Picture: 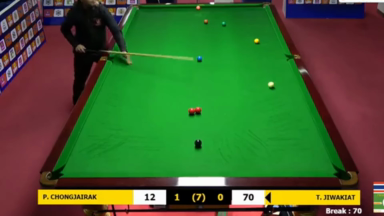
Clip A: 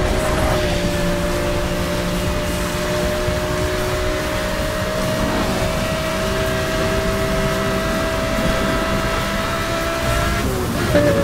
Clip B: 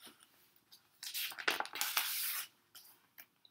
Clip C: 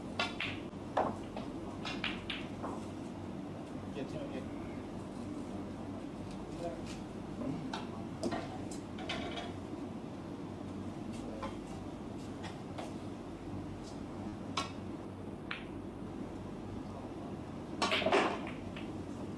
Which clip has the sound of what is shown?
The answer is C